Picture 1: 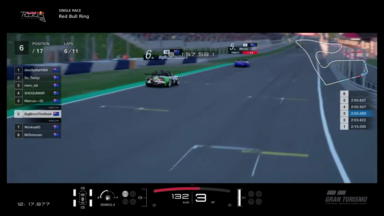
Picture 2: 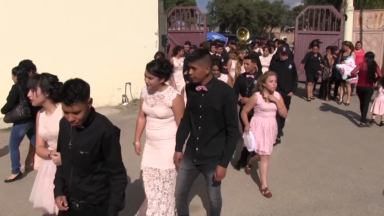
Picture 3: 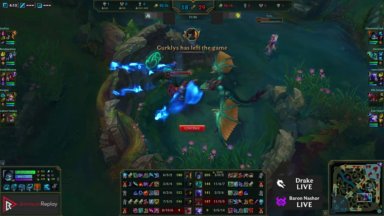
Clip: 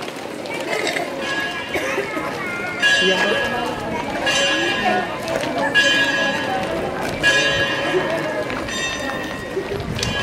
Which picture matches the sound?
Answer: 2